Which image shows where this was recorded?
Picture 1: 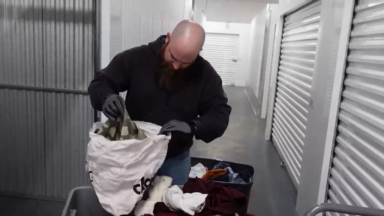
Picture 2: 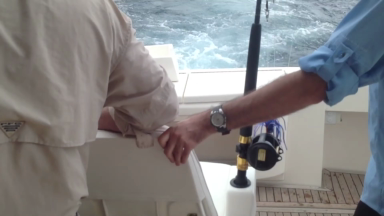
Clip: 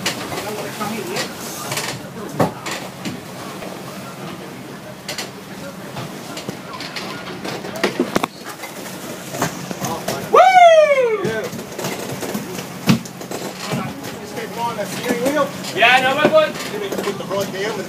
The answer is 2